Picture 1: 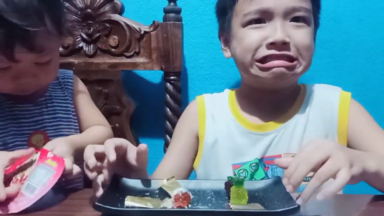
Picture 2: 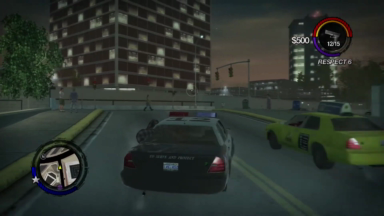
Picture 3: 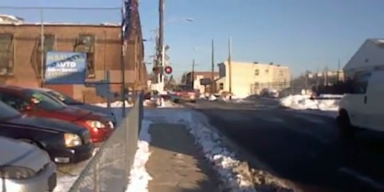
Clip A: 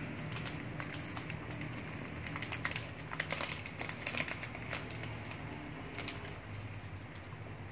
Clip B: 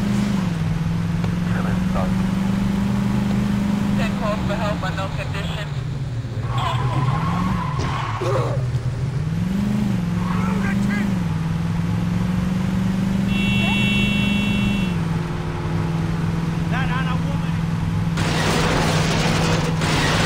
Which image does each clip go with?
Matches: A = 1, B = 2